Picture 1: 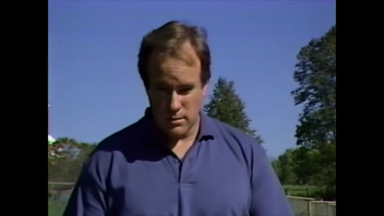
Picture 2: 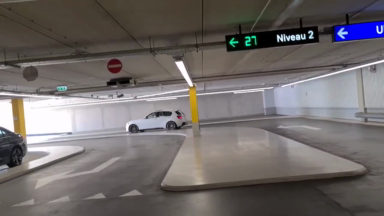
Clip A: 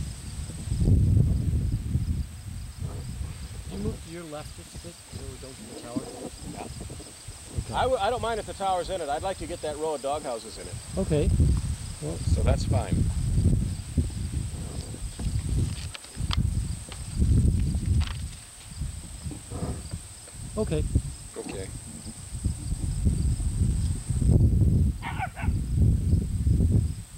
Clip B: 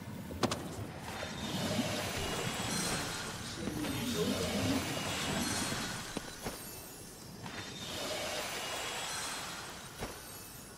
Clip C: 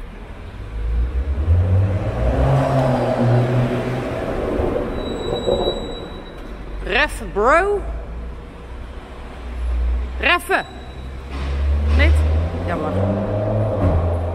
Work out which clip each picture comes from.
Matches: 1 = A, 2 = C